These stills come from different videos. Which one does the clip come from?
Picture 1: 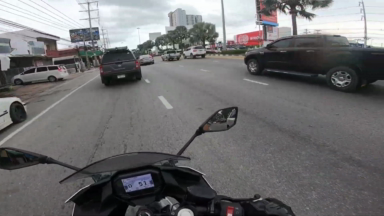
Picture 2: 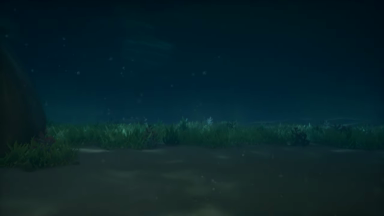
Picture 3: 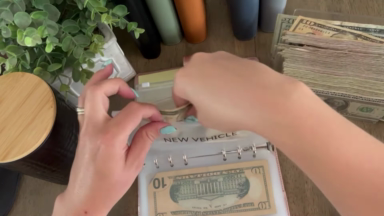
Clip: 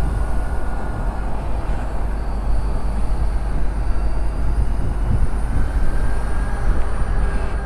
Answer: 1